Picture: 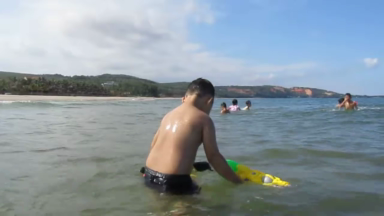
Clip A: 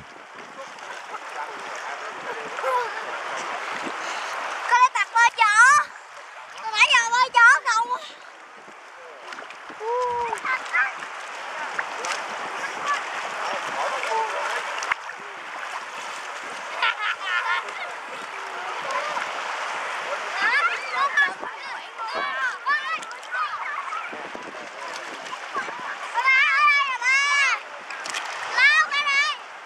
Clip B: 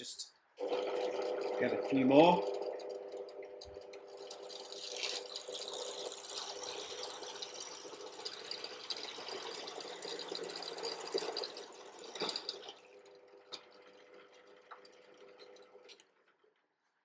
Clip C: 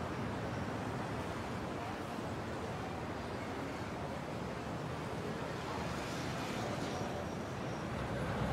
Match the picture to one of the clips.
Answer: A